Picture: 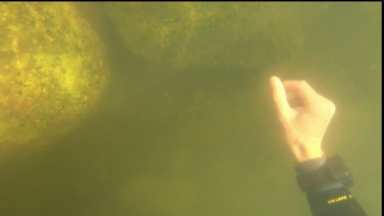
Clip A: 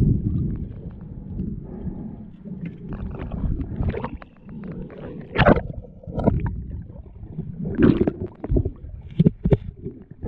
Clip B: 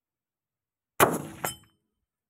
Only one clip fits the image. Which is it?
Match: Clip A